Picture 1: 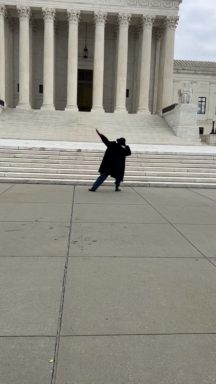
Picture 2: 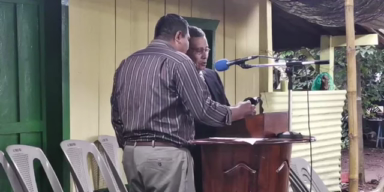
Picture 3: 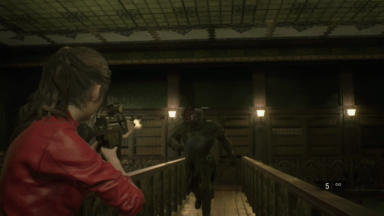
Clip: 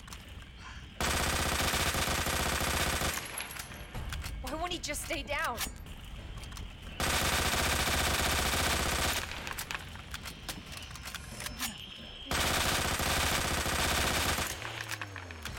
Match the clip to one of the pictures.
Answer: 3